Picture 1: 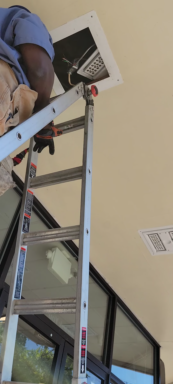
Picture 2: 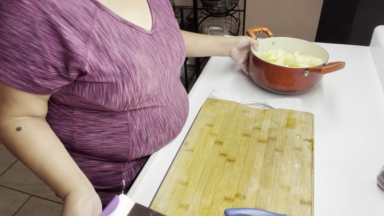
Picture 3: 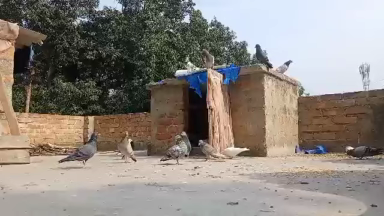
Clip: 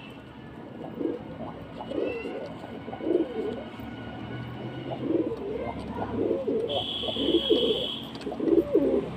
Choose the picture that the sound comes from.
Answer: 3